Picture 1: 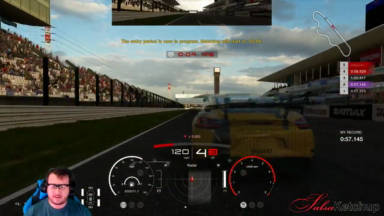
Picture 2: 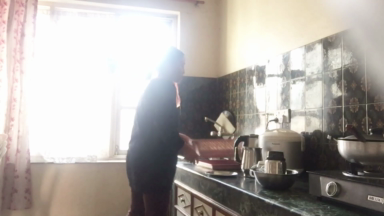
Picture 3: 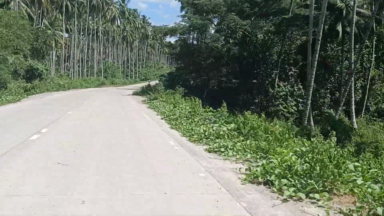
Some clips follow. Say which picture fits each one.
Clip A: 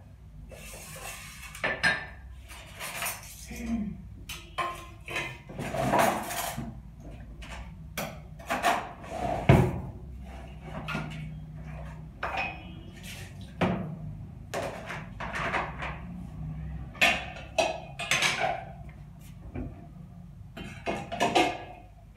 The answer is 2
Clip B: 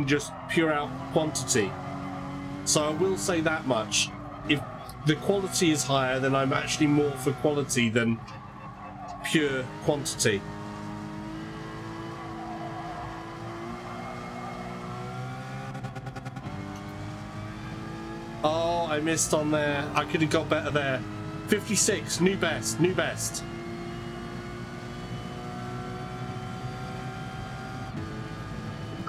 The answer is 1